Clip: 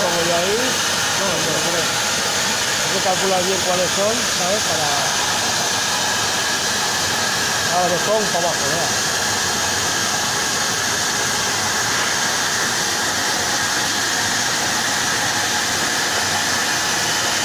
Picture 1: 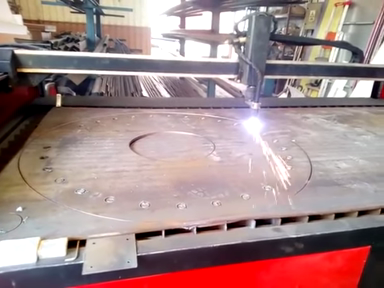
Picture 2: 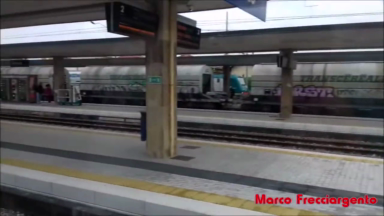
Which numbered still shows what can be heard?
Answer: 1